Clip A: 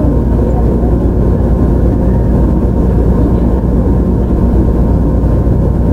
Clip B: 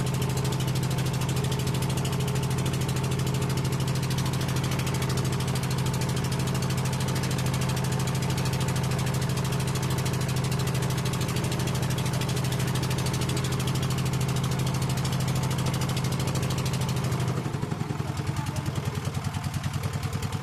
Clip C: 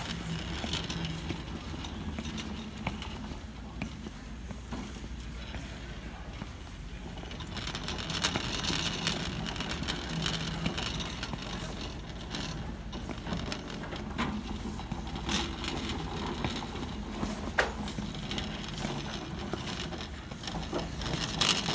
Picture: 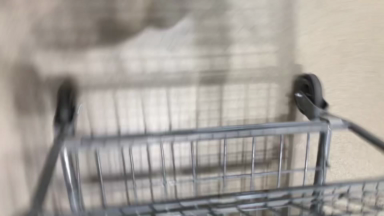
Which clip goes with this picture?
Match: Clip C